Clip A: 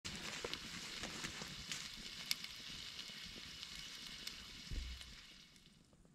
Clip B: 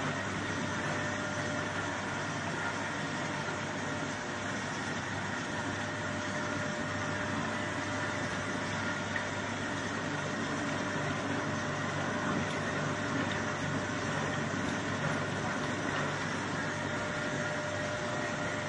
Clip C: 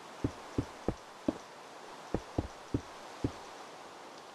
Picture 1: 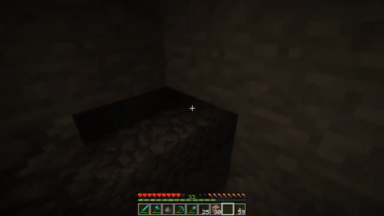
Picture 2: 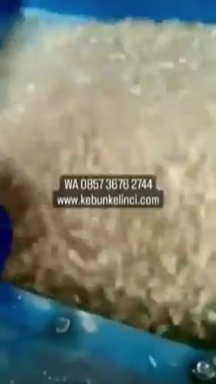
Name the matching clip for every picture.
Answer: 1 C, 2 B